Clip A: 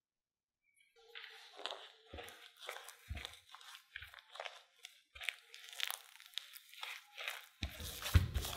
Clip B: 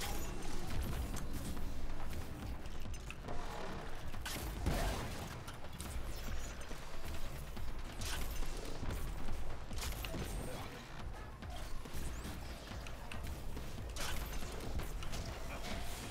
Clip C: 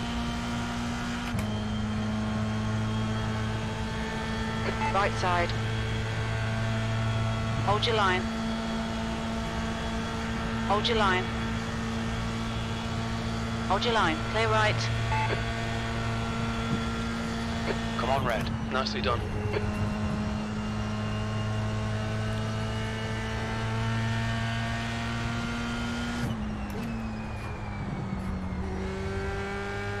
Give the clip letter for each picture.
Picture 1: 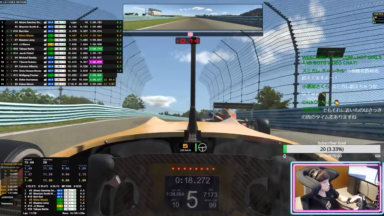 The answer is C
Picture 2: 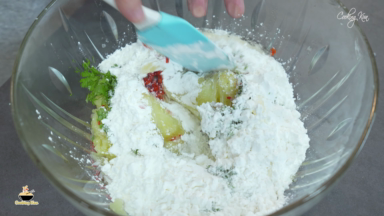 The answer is A